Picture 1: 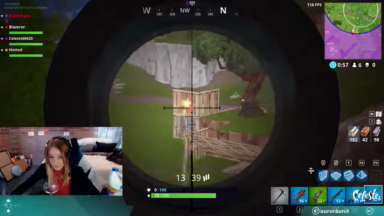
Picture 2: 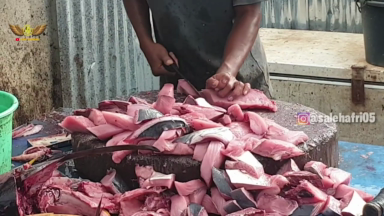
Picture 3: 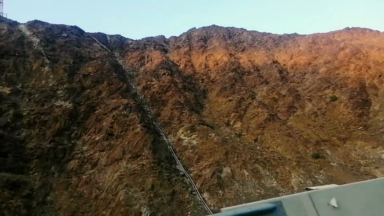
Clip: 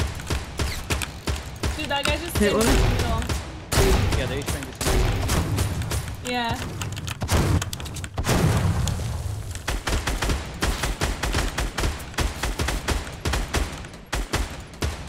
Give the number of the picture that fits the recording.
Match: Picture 1